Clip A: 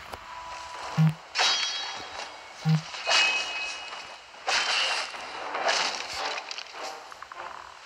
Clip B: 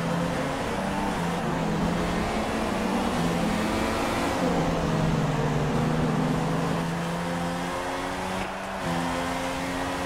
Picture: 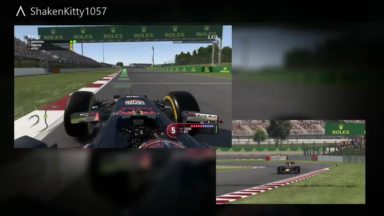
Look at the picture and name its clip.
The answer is B